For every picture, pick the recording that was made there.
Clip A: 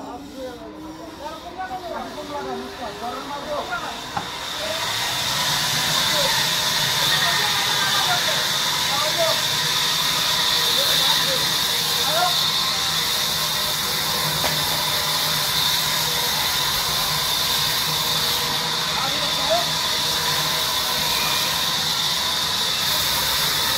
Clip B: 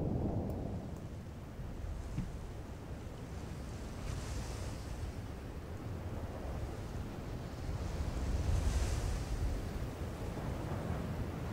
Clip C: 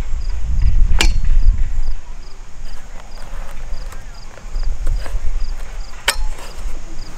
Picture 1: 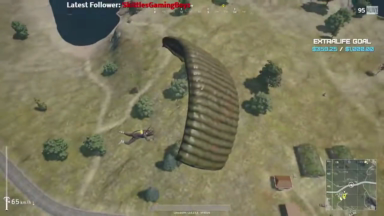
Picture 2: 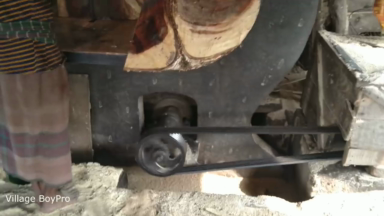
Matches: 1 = B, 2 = A